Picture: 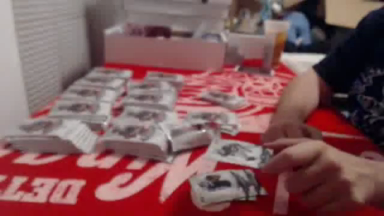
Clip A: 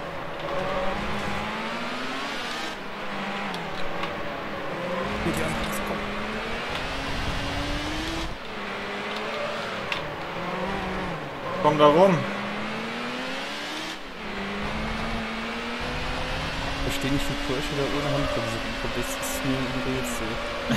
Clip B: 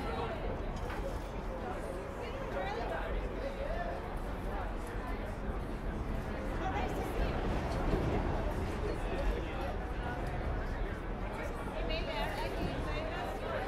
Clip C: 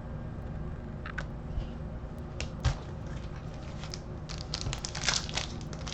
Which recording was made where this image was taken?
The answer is C